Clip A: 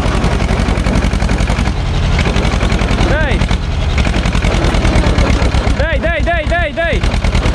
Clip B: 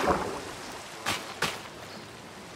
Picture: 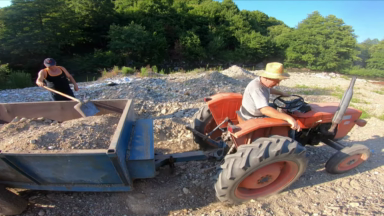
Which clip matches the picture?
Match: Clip A